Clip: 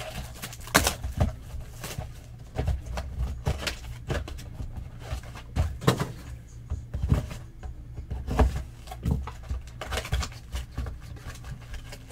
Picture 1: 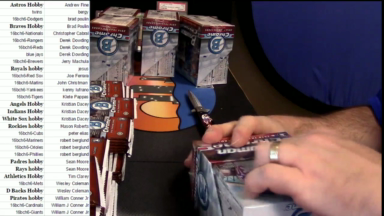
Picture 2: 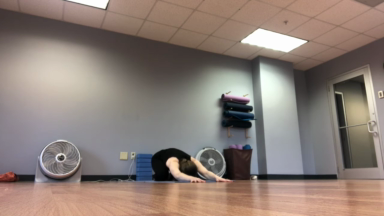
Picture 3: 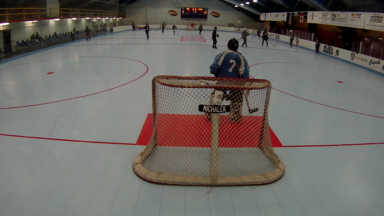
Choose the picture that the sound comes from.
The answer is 1